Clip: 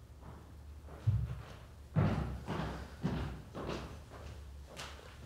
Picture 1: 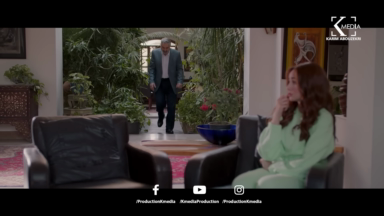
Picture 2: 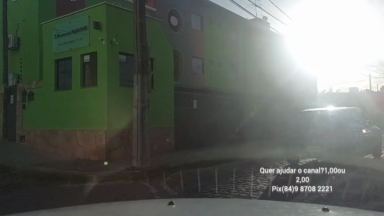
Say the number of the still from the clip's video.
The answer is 1